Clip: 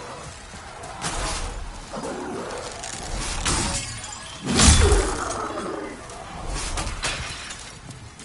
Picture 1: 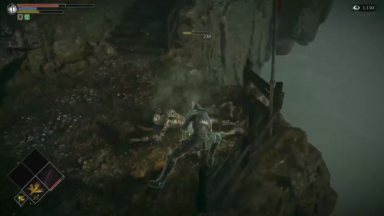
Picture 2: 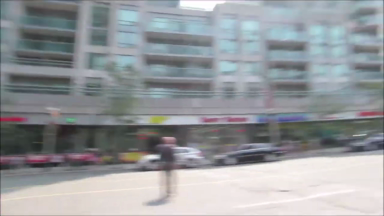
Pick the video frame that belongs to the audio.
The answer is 1